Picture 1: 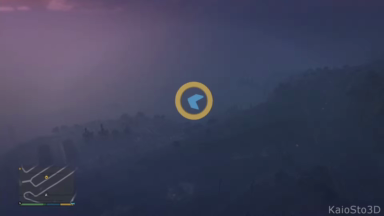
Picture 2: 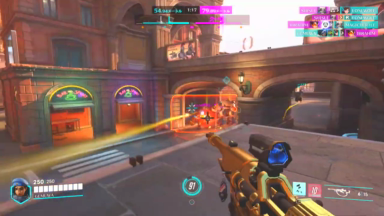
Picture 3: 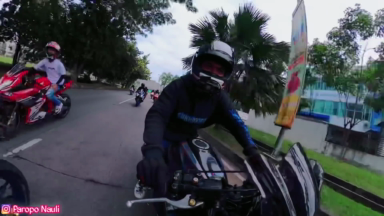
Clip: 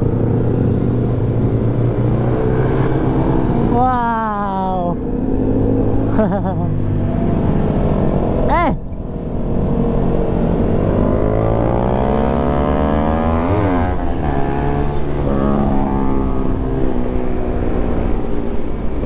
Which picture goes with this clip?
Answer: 3